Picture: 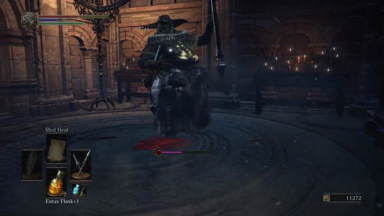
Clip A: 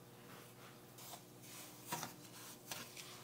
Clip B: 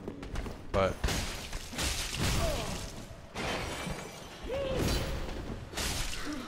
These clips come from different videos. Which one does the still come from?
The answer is B